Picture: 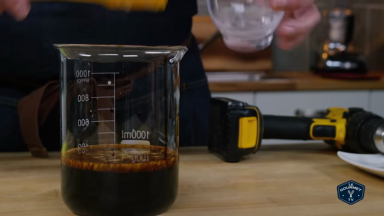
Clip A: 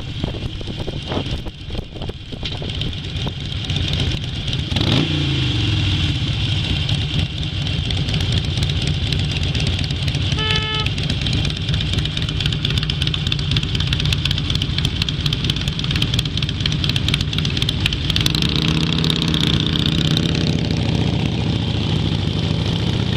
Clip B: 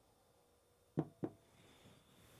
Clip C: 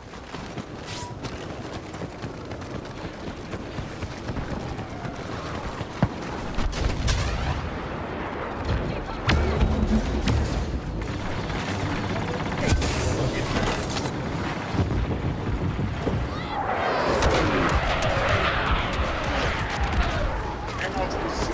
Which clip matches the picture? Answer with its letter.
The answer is B